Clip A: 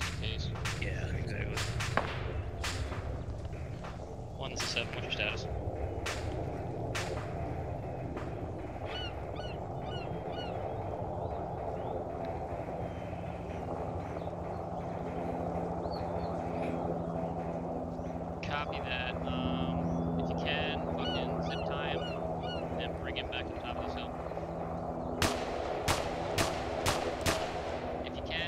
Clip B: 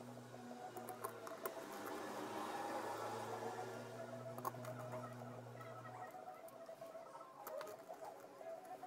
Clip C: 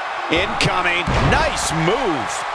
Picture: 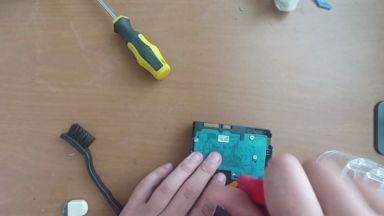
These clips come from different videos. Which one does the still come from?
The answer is B